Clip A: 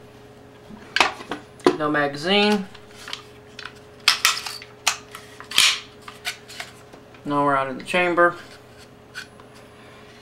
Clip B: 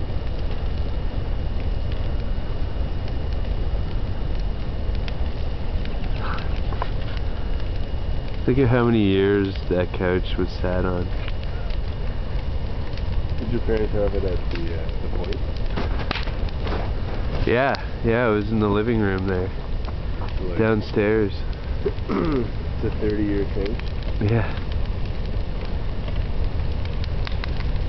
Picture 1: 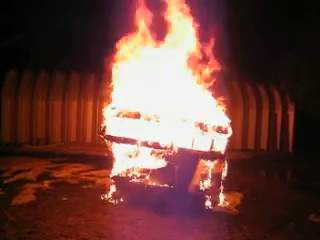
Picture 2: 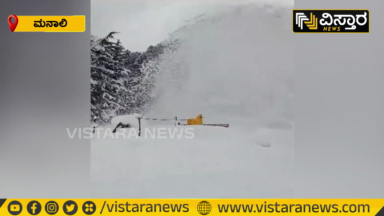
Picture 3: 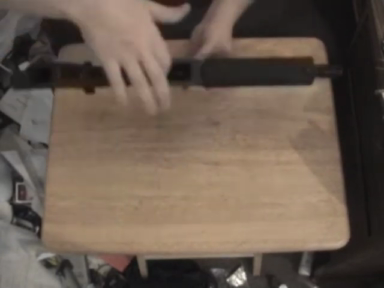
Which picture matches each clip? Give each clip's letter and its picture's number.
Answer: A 3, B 1